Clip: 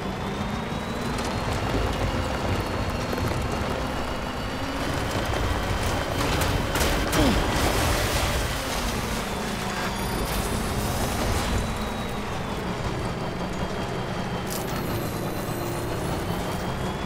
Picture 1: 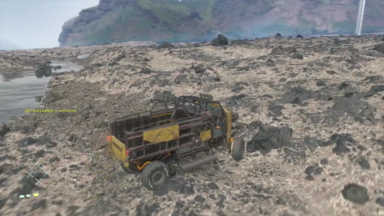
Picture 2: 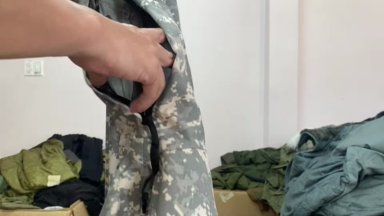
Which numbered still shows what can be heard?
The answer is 1